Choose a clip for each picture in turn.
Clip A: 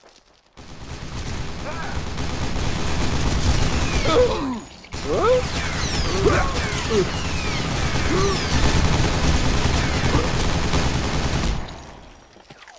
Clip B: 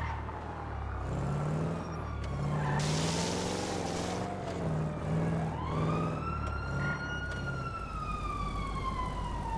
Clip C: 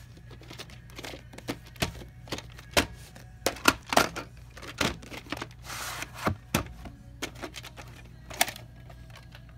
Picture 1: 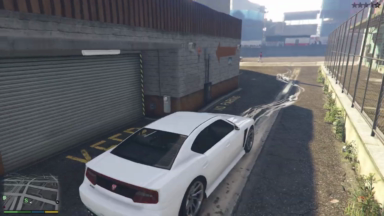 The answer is B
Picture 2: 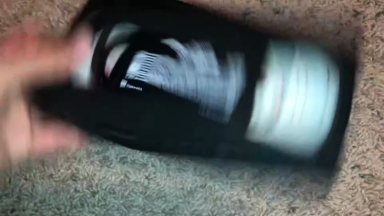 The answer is C